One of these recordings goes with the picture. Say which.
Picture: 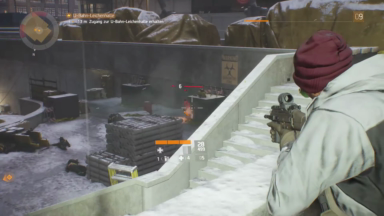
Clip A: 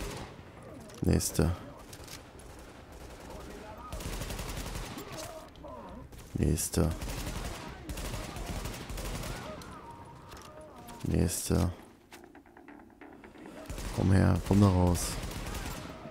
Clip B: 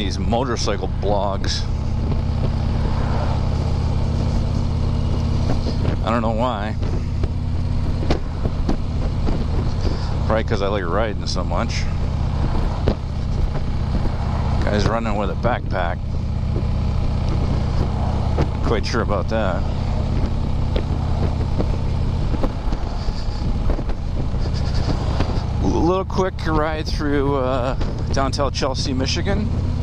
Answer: A